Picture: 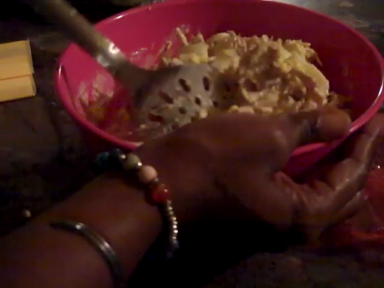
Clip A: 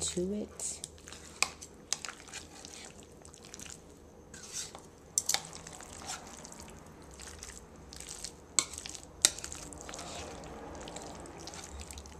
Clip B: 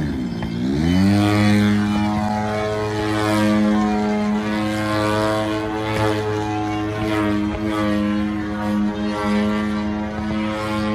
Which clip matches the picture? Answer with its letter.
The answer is A